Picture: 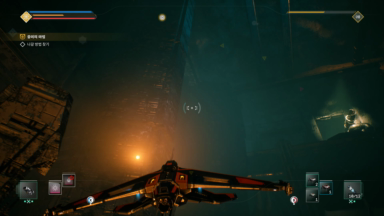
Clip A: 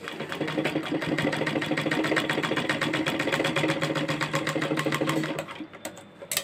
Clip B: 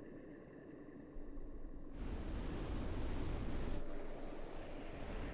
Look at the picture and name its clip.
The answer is B